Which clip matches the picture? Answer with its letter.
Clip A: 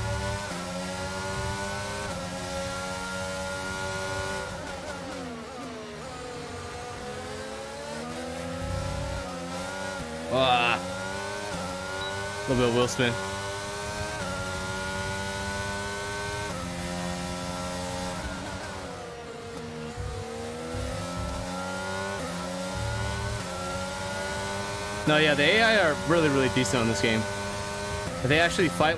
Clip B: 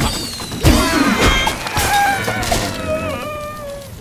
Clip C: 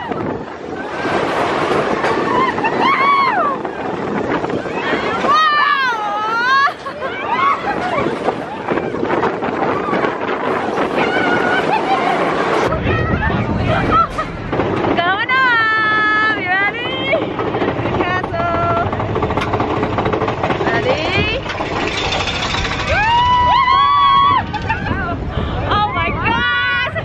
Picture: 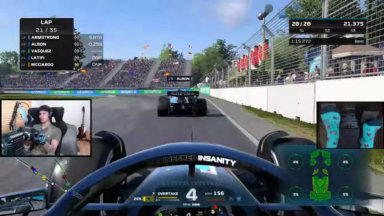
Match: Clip A